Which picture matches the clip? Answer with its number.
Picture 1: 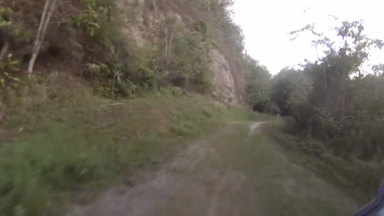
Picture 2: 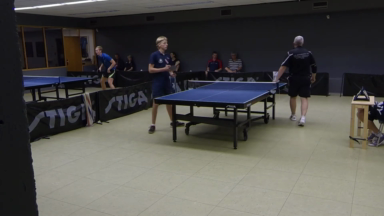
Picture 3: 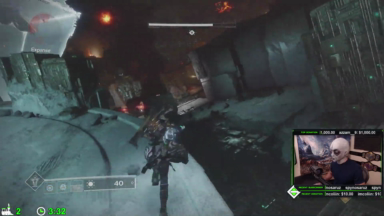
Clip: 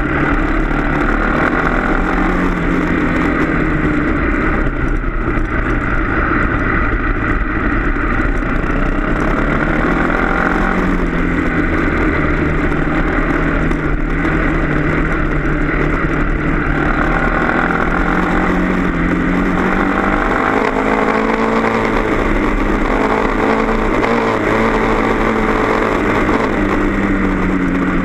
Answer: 1